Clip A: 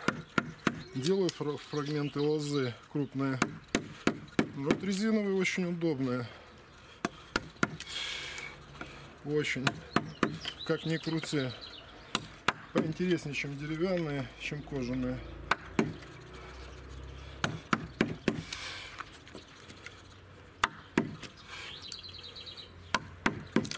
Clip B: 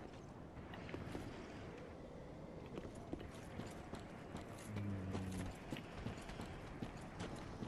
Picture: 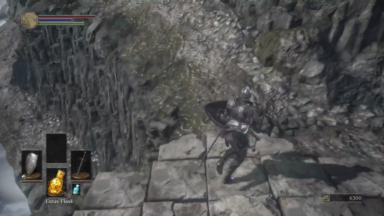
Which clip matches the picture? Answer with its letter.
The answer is B